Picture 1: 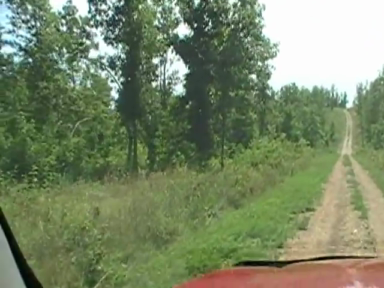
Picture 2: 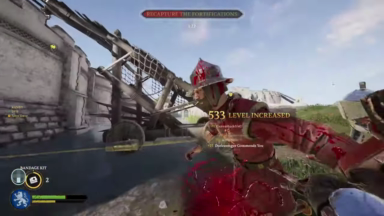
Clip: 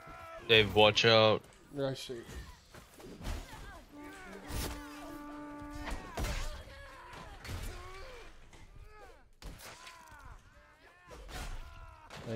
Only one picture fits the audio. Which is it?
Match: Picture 2